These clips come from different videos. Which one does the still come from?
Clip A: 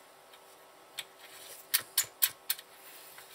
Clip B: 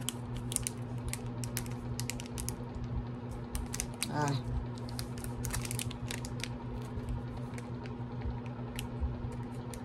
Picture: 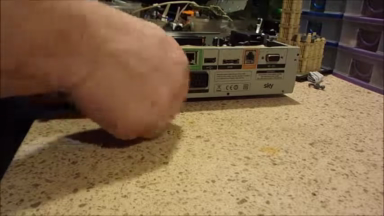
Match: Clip A